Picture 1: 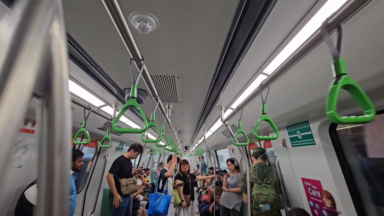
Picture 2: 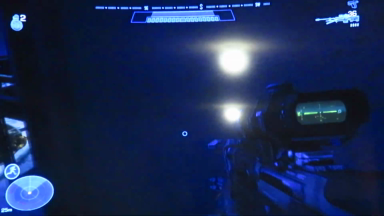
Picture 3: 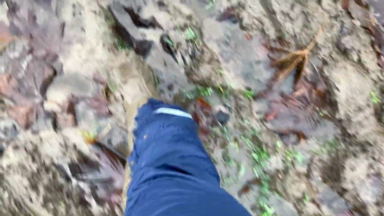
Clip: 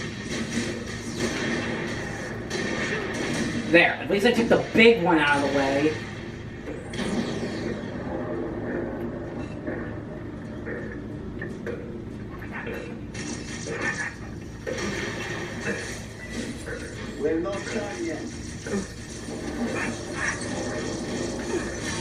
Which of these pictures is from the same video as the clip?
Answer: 2